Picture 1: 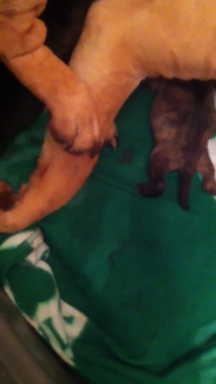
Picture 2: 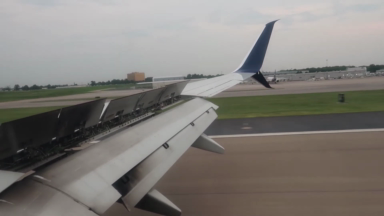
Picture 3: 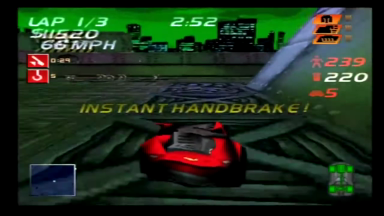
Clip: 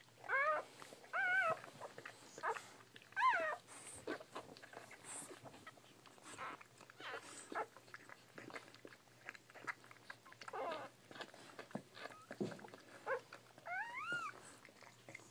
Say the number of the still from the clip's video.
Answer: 1